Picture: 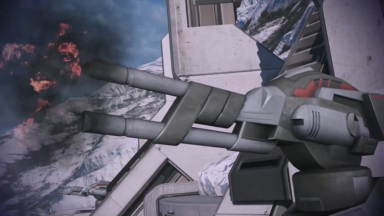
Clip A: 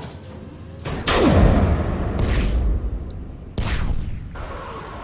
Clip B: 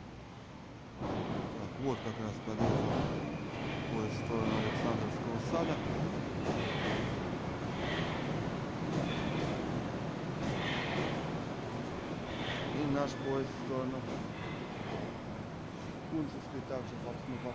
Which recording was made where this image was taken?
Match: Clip A